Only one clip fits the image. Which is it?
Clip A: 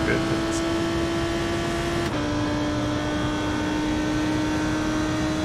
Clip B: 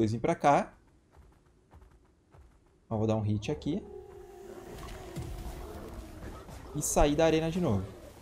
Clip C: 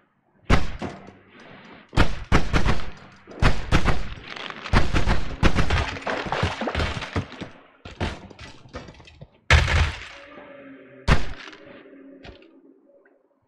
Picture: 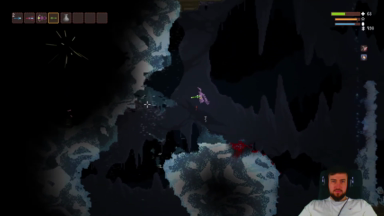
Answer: C